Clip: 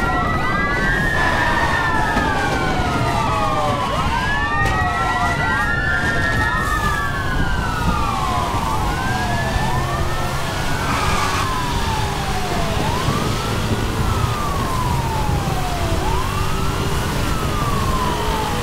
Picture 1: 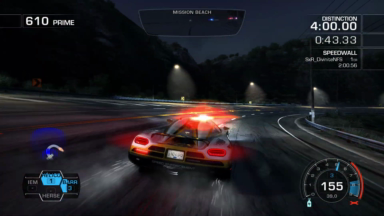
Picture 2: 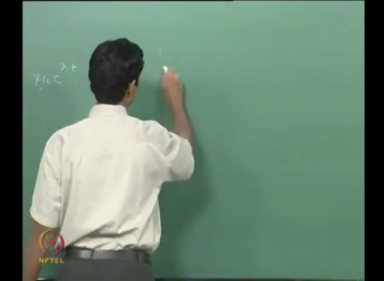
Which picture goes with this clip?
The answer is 1